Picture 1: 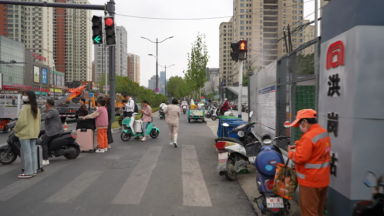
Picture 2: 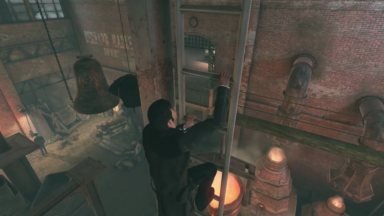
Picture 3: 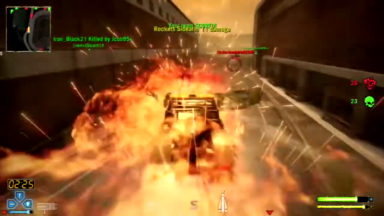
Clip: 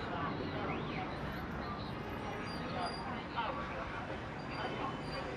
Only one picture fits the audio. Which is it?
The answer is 1